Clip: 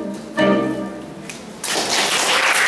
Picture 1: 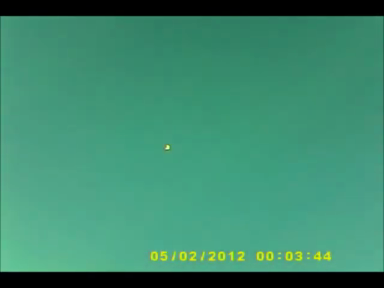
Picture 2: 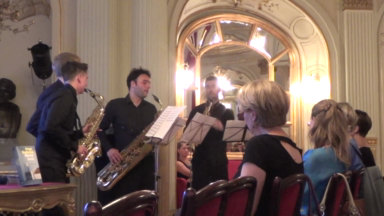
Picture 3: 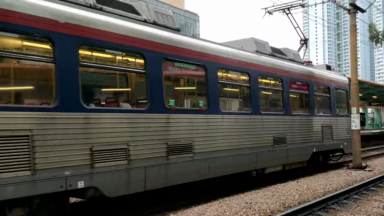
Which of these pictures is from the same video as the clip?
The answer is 2